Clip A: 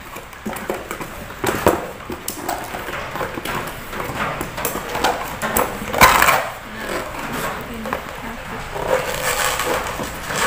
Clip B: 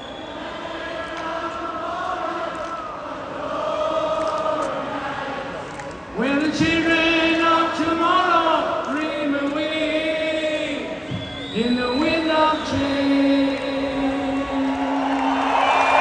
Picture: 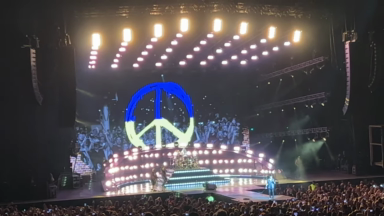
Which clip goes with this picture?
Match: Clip B